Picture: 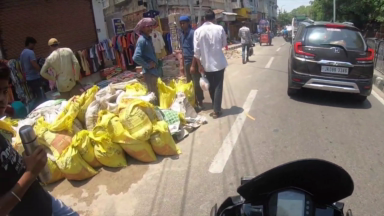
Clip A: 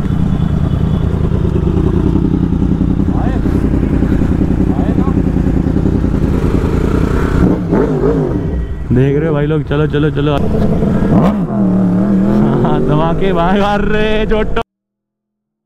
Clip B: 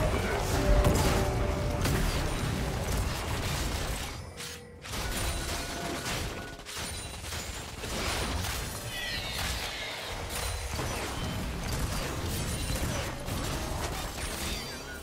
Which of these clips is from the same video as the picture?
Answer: A